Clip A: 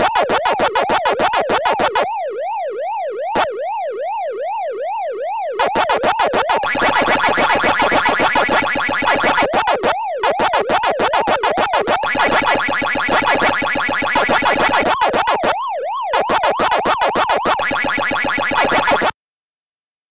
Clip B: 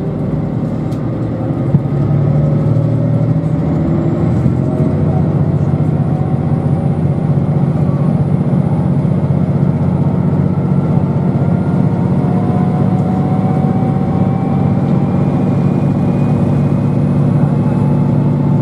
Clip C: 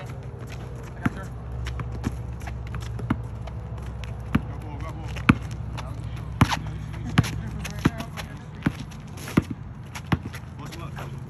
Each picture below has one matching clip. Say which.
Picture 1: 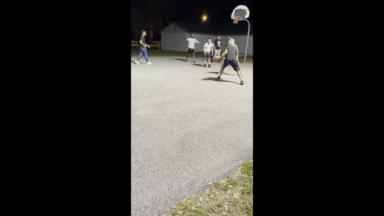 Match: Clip C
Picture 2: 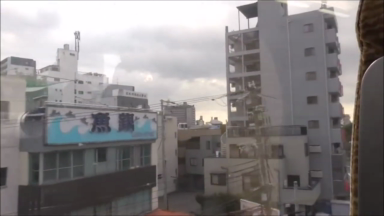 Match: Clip B